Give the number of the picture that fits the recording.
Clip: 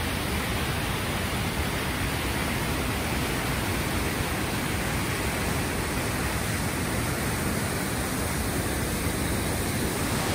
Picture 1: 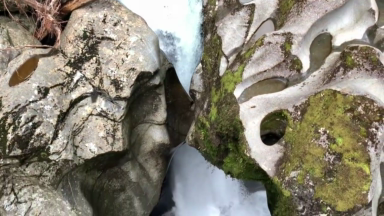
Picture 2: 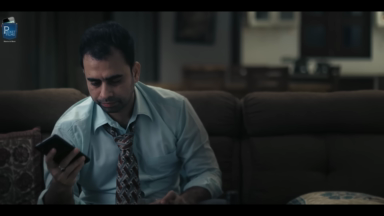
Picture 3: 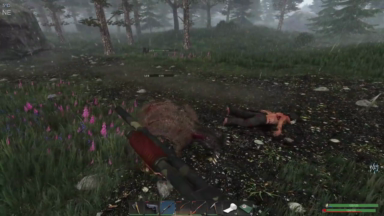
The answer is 1